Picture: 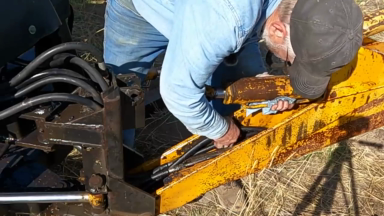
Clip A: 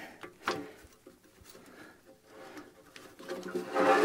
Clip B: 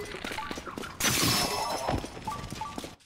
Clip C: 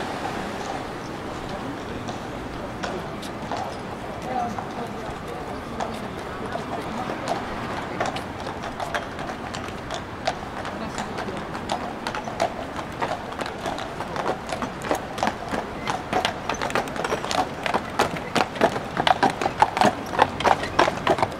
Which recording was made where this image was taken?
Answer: A